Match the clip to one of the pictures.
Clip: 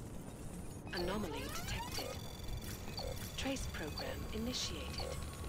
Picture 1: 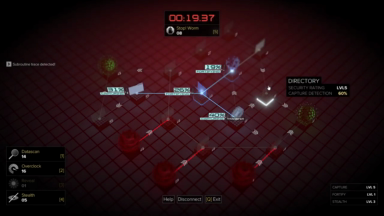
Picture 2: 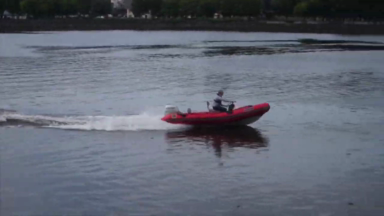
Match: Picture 1